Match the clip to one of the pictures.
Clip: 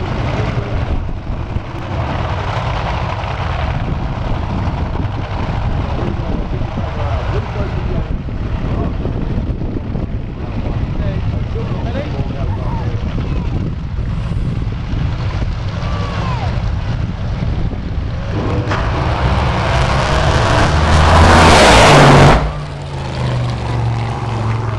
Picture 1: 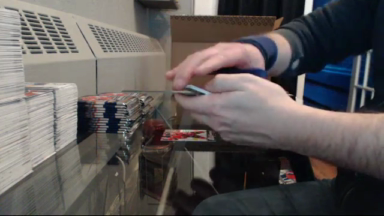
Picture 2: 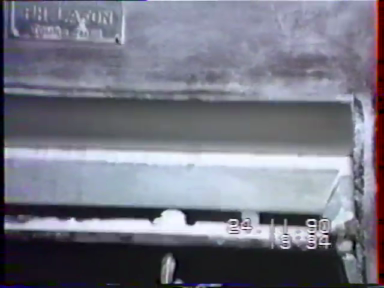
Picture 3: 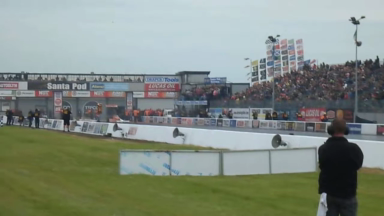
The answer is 3